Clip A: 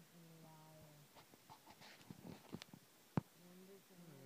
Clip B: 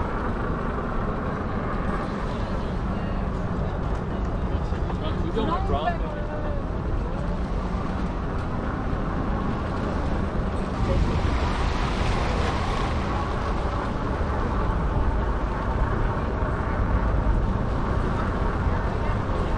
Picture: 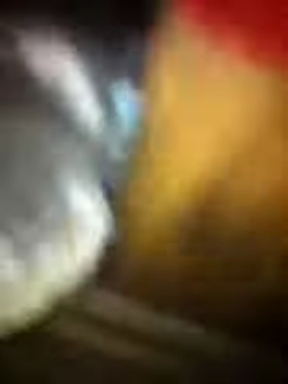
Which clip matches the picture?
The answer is A